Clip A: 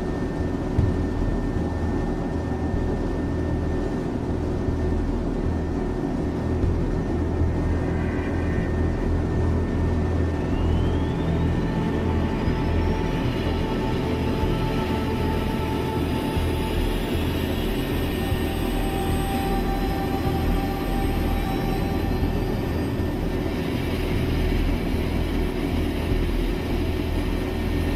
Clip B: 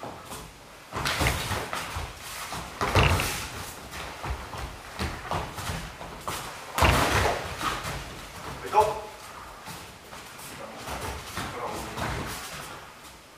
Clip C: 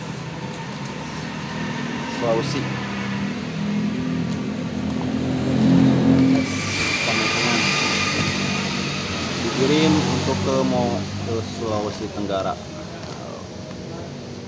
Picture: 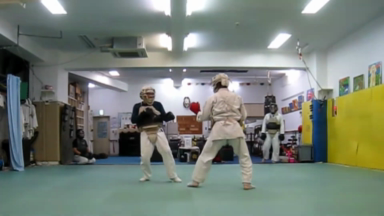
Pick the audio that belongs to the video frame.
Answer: B